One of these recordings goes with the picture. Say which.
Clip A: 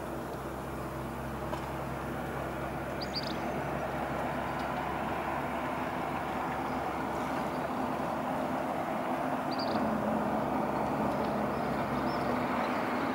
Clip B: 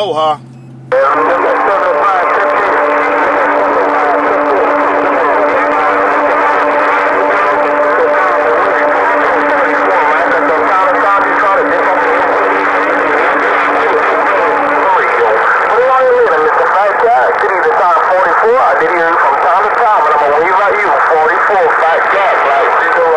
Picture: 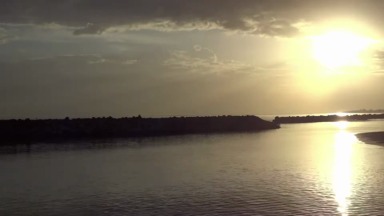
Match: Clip A